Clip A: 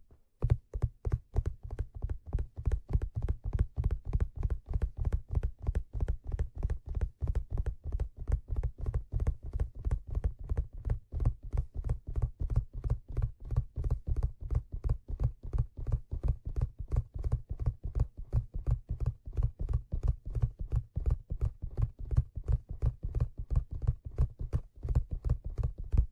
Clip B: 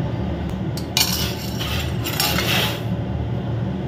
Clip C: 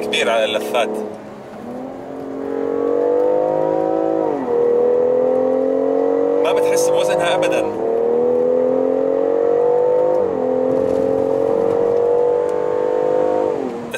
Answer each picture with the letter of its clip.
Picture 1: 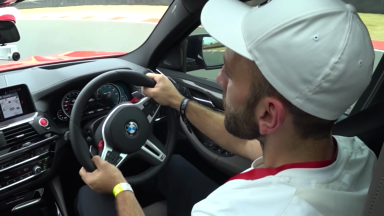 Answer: C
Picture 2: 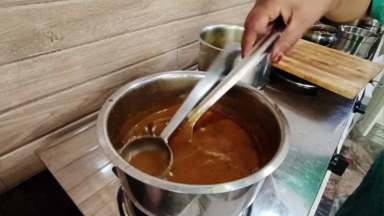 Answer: B